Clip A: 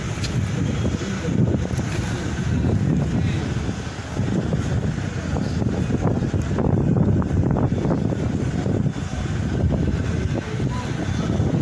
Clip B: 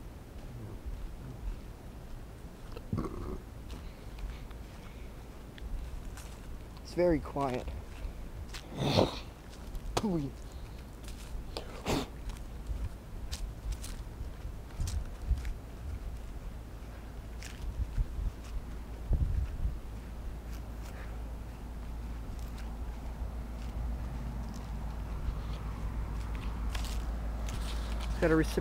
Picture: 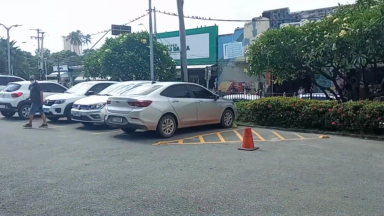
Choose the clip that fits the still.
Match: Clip A